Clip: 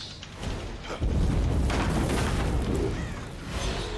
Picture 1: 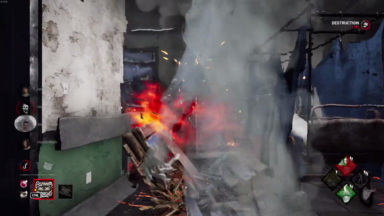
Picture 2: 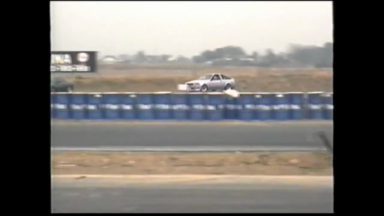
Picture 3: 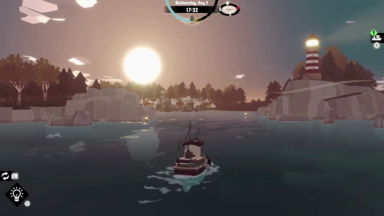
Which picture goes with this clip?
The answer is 1